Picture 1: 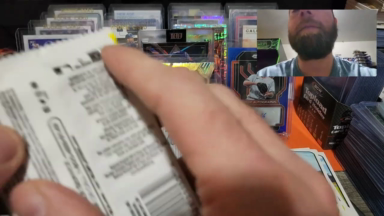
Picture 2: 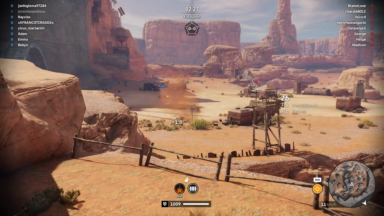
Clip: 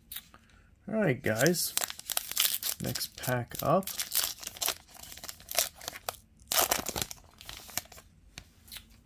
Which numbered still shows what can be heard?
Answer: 1